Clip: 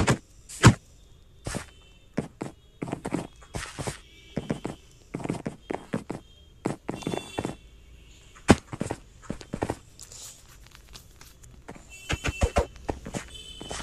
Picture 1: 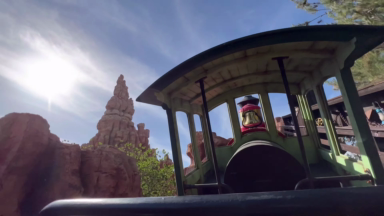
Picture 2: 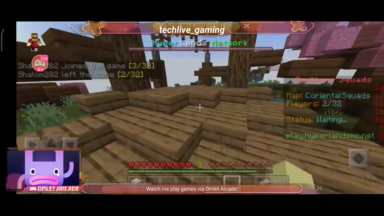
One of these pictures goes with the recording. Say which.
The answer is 2